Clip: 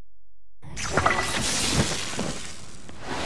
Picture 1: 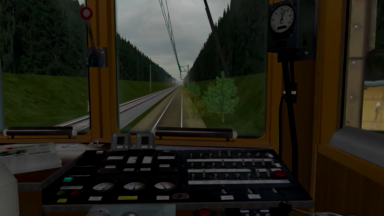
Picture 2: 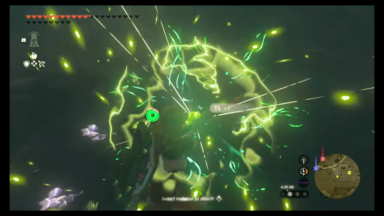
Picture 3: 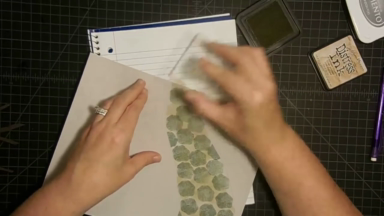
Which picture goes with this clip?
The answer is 2